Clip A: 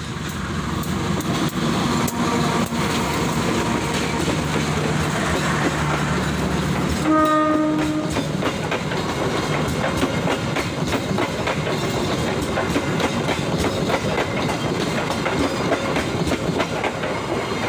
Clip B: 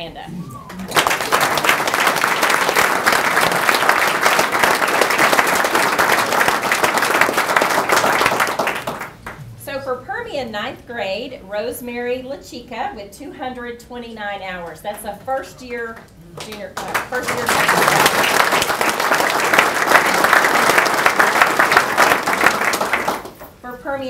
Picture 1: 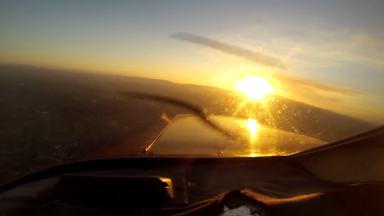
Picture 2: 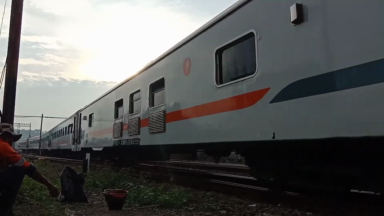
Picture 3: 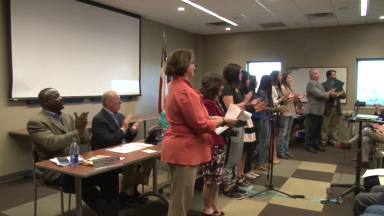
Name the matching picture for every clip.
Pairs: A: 2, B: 3